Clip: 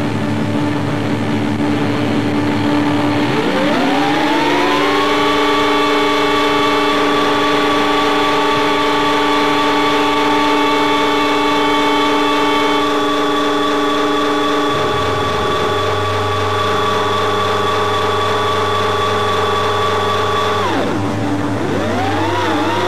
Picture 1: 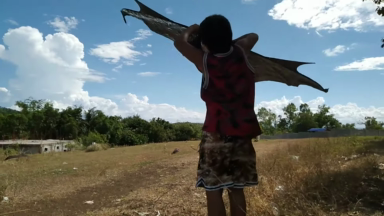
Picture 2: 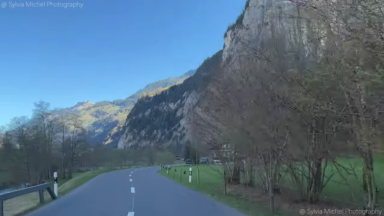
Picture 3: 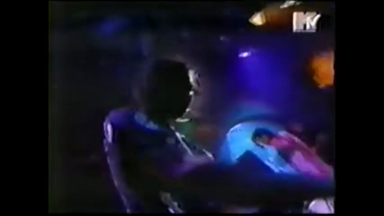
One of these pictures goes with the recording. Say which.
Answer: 3